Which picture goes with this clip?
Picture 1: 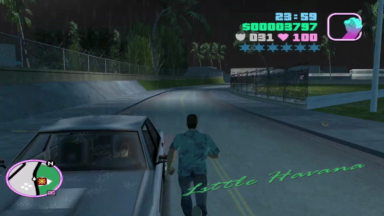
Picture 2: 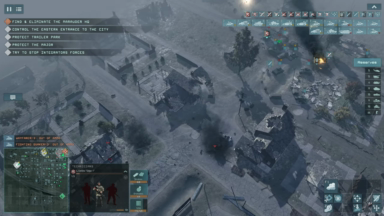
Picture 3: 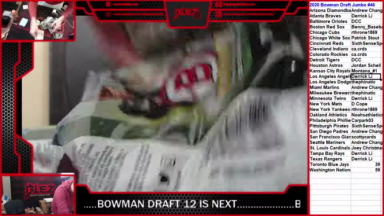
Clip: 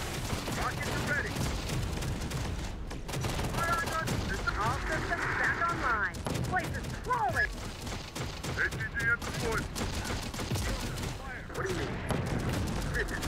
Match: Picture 2